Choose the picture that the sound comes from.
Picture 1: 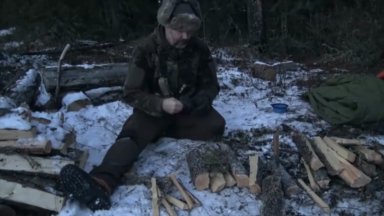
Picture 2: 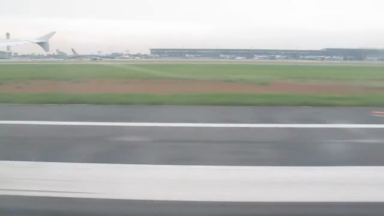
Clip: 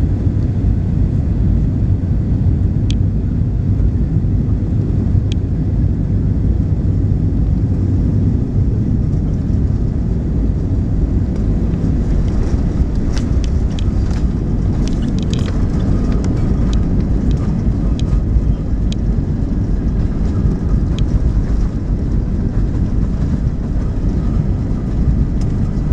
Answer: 2